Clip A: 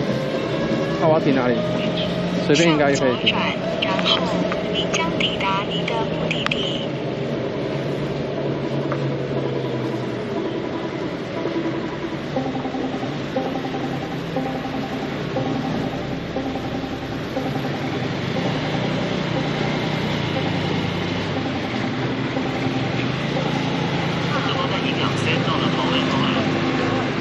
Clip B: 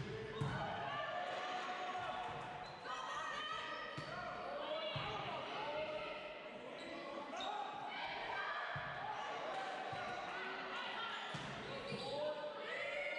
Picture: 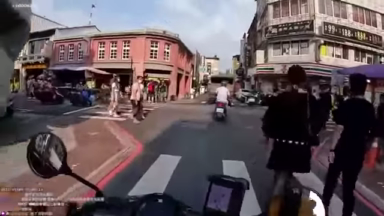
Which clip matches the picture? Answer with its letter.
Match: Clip A